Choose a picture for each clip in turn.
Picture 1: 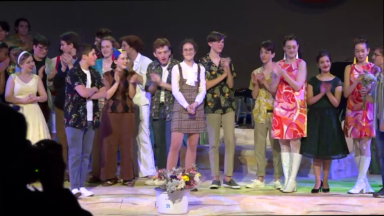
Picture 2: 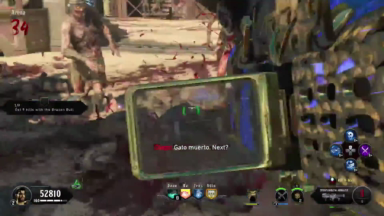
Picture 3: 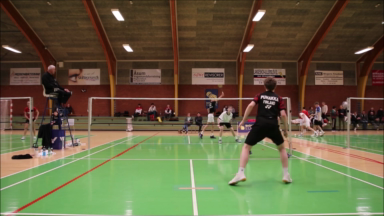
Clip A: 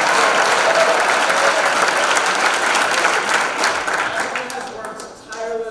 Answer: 1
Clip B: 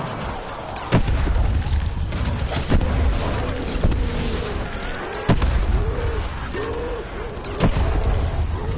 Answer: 2